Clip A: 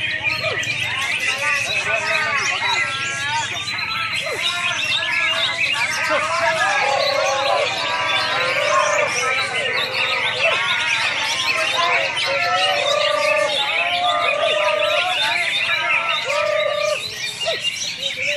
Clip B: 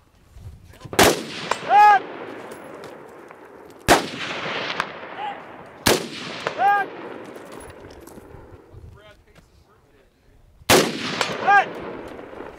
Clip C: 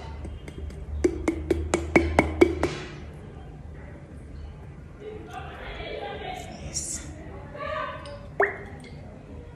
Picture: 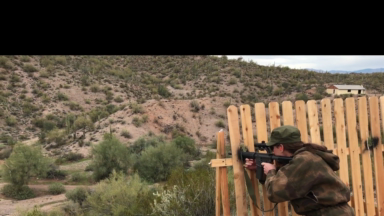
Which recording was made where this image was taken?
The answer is B